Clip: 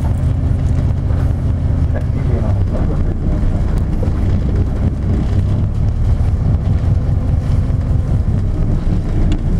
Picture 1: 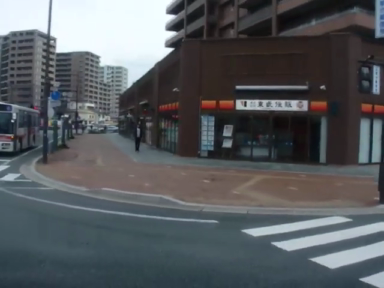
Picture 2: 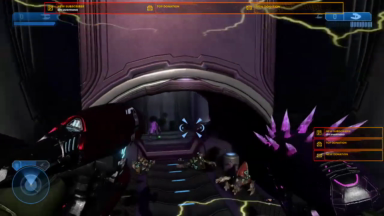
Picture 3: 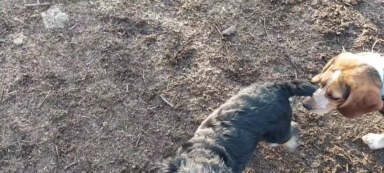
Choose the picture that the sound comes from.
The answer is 1